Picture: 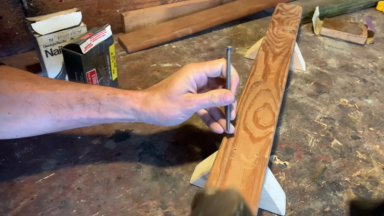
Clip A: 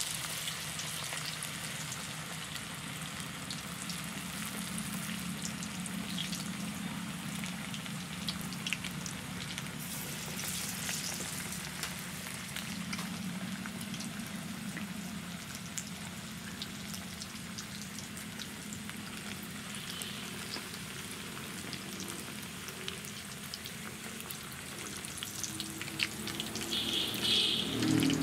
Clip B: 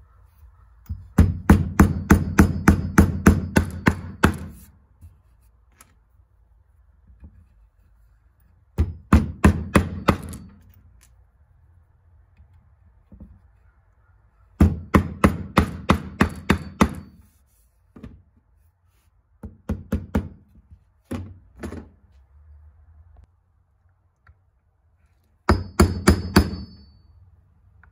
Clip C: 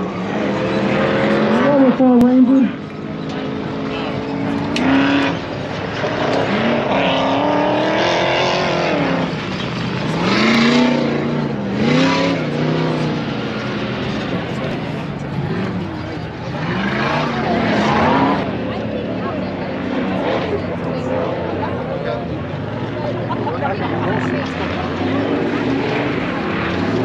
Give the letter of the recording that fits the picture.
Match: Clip B